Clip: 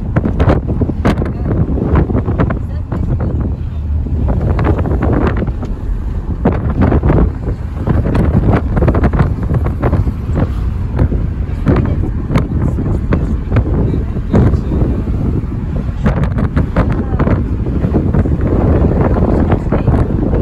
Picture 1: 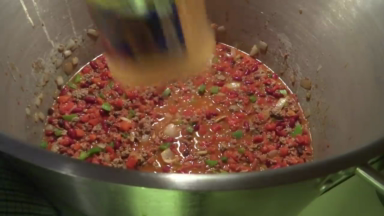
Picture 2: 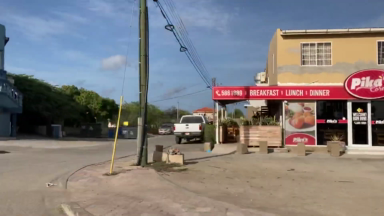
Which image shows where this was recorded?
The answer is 2